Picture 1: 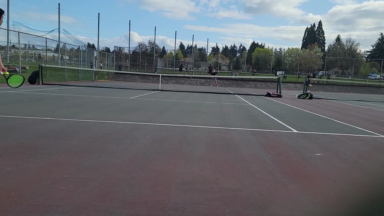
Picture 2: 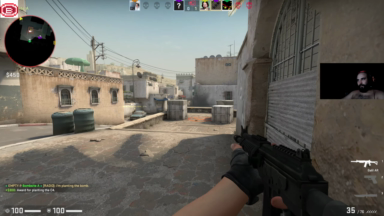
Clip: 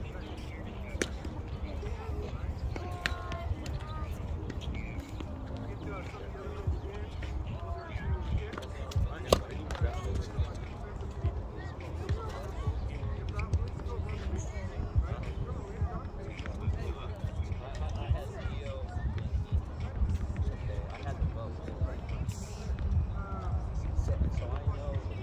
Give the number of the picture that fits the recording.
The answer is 1